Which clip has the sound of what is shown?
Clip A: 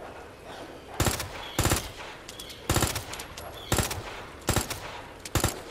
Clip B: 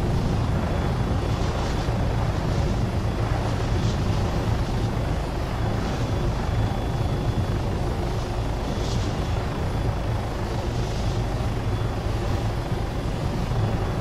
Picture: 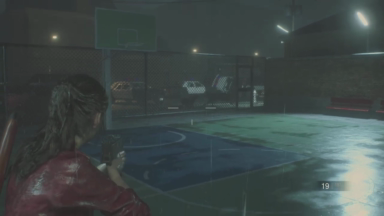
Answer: A